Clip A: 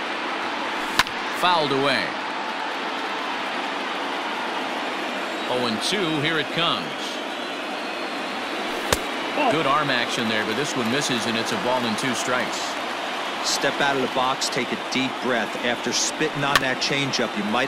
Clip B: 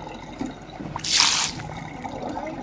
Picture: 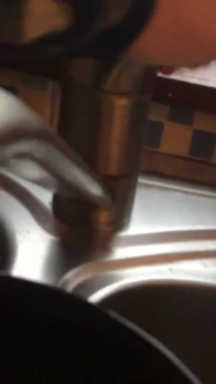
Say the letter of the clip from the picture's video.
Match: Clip B